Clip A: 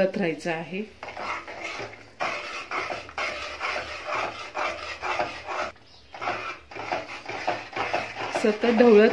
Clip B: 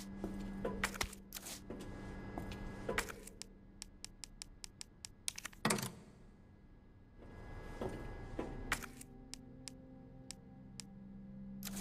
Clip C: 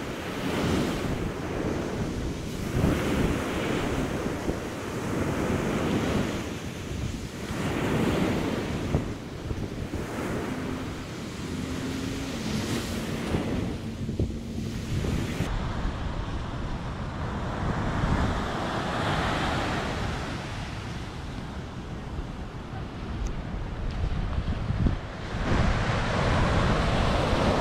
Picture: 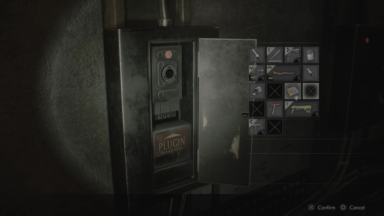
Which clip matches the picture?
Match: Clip B